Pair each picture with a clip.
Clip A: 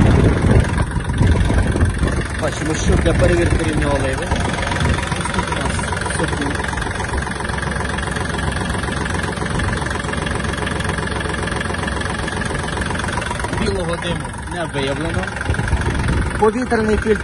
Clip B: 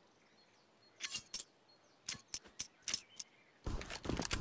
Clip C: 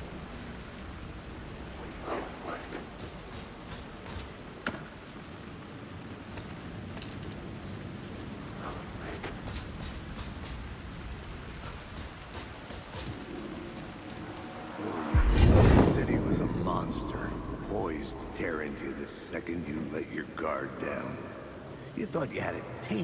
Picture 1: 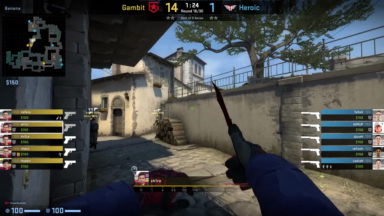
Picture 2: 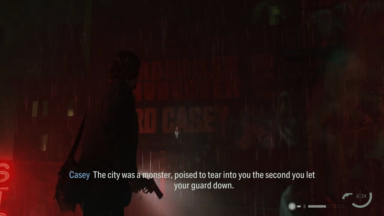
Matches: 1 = B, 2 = C